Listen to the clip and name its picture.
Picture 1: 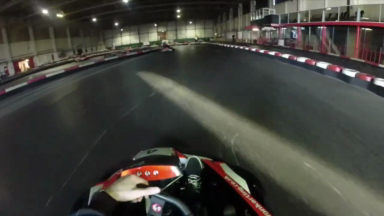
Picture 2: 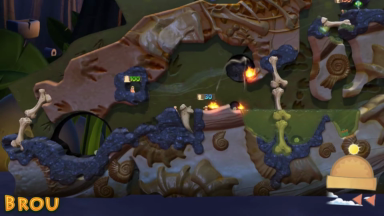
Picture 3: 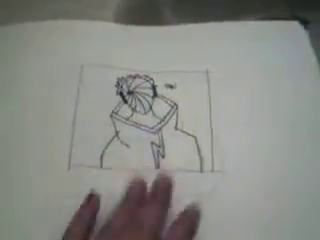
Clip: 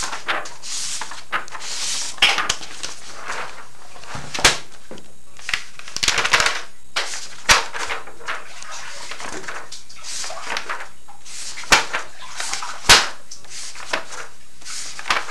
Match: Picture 3